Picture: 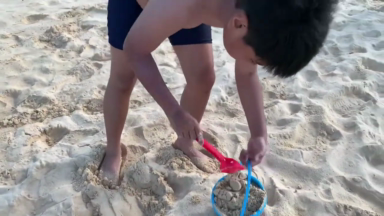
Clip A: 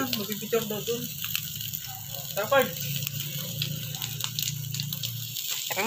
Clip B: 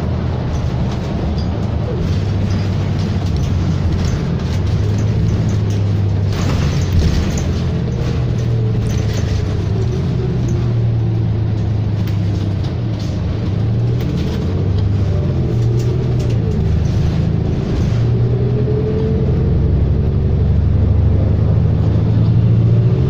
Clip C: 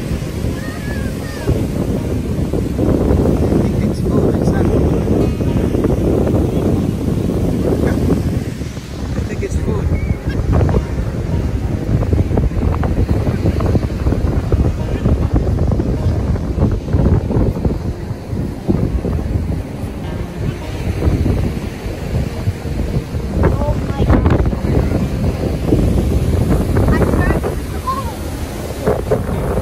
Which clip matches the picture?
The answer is C